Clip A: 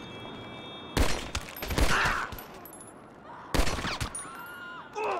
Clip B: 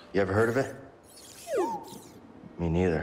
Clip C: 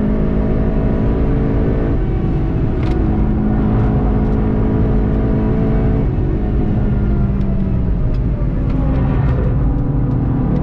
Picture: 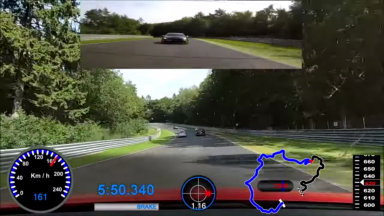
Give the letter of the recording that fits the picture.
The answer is C